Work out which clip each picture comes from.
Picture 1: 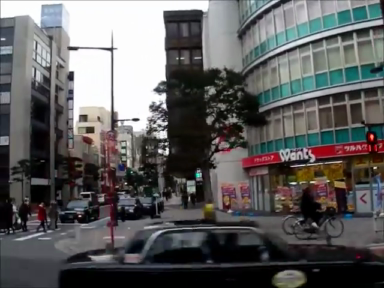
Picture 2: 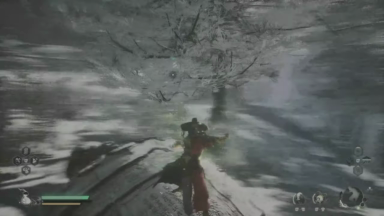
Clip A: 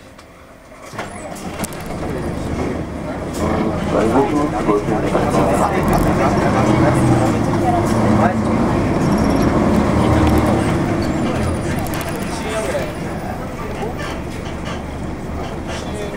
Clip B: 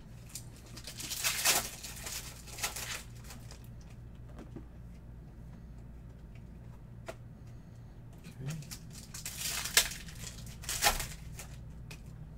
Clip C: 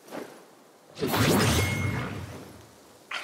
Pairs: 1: A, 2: C